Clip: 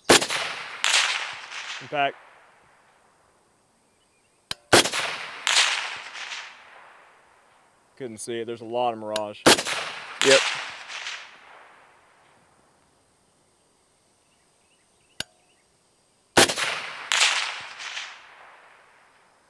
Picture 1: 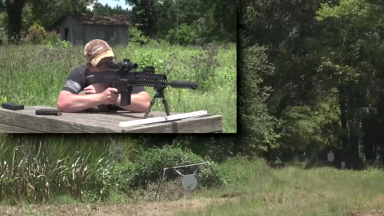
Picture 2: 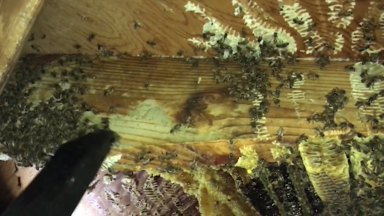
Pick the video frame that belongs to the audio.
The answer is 1